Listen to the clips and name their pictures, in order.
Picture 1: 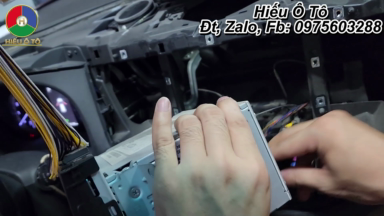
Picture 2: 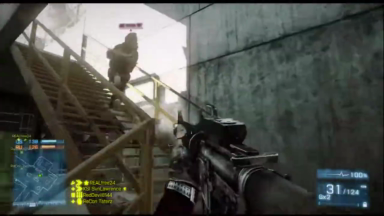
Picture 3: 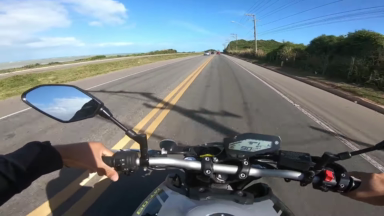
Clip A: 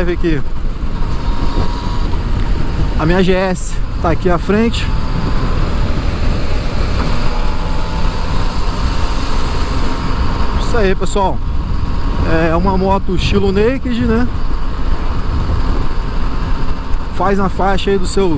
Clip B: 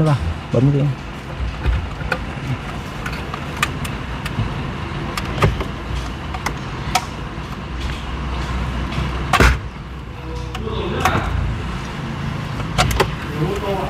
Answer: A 3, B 1